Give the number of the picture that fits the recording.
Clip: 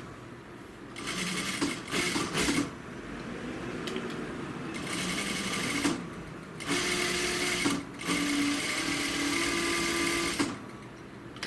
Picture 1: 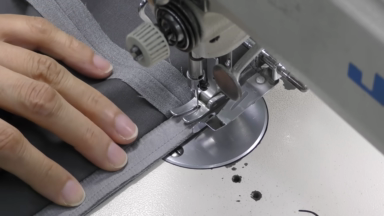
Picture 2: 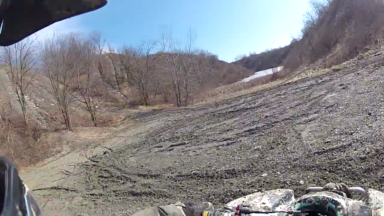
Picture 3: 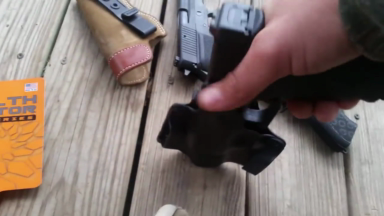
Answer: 1